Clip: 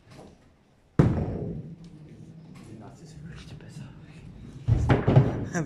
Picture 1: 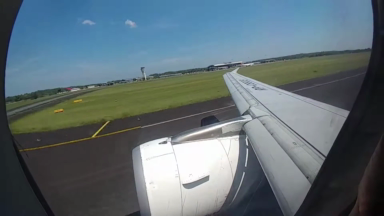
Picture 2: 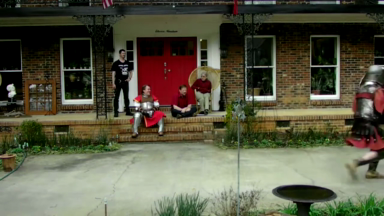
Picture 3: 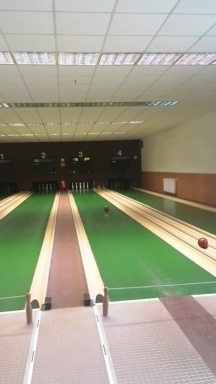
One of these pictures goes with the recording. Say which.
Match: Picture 3